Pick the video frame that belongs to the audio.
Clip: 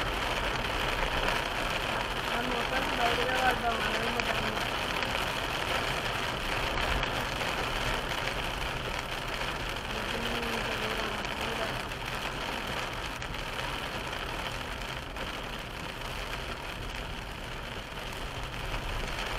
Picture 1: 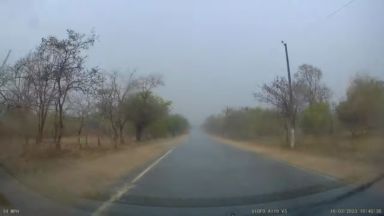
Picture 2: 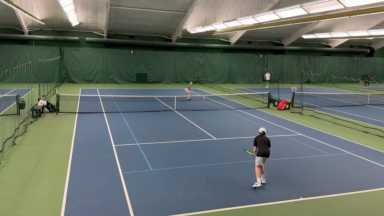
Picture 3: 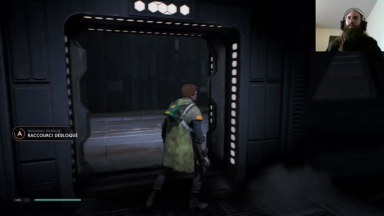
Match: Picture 1